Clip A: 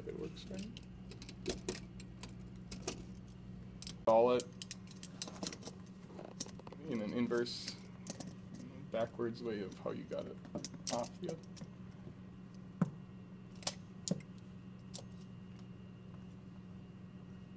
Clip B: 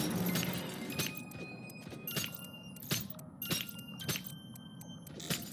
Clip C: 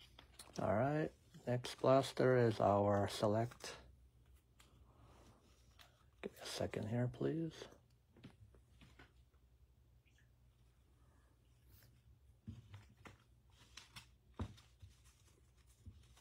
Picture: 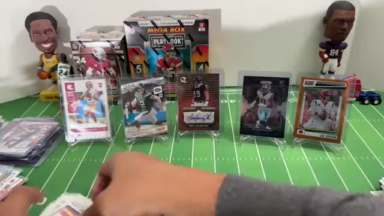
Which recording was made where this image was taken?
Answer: C